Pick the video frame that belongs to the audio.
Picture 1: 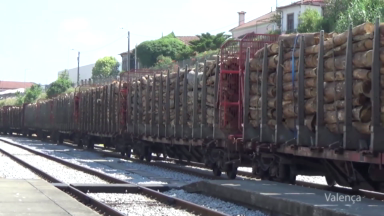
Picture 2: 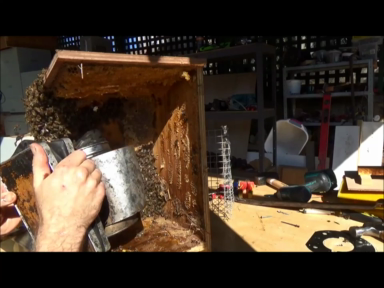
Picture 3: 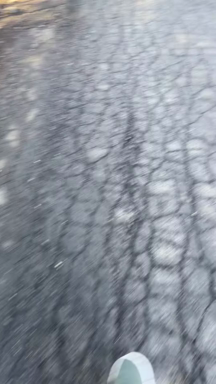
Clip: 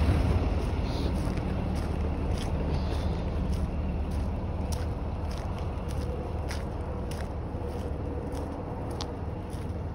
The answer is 3